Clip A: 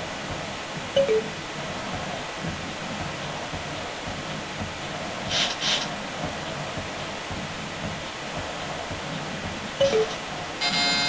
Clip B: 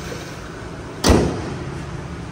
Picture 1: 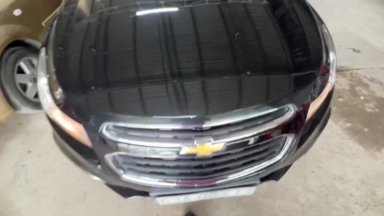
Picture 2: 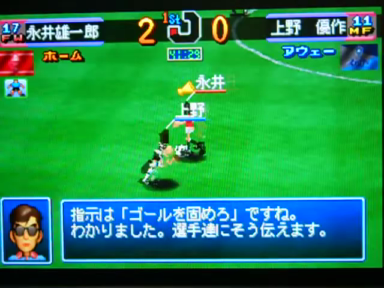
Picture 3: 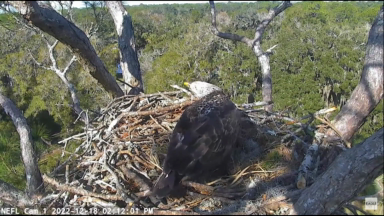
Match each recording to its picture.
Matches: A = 2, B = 1